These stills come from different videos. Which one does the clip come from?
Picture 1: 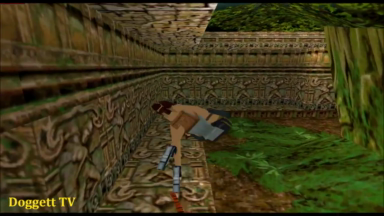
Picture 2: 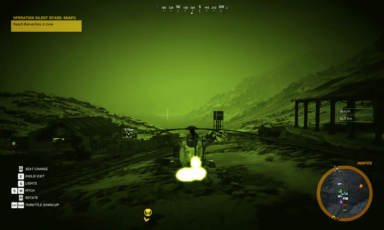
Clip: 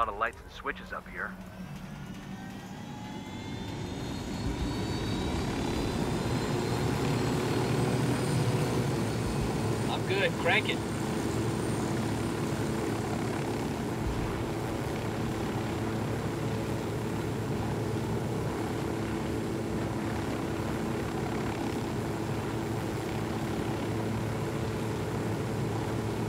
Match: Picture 2